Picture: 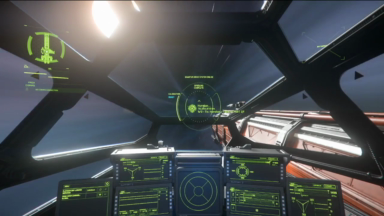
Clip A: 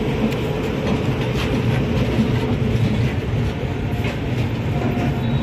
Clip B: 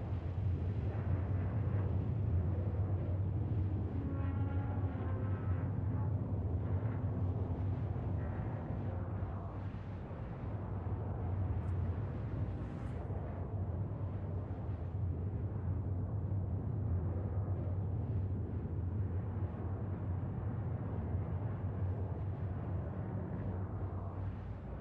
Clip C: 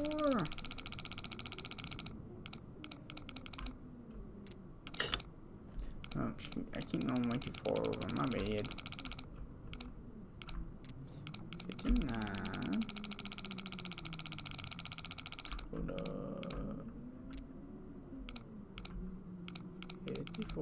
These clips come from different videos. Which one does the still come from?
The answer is B